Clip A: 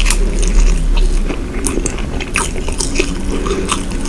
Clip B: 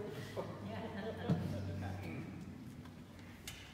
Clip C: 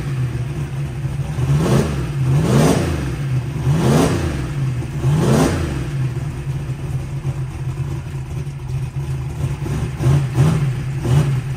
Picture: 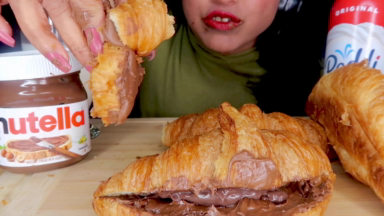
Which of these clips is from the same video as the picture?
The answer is A